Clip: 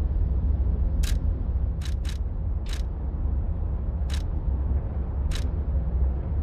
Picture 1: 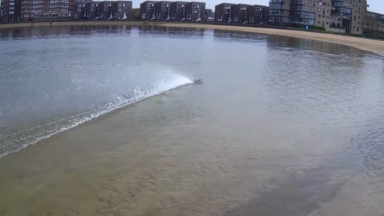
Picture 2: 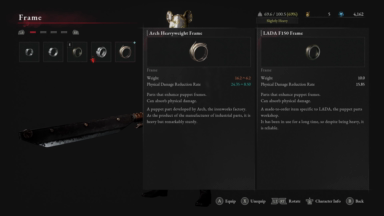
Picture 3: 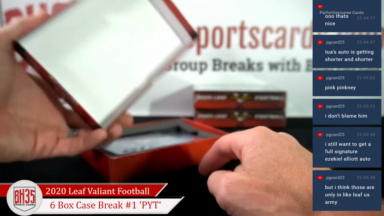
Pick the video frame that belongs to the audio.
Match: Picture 2